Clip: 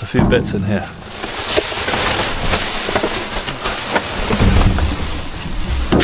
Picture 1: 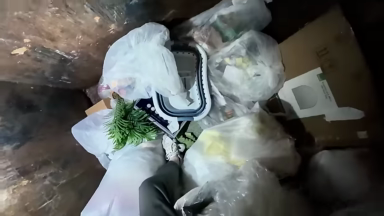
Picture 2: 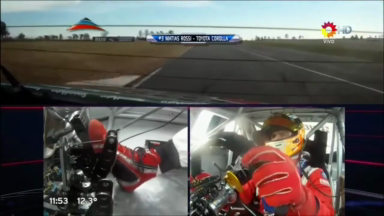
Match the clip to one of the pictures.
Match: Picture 1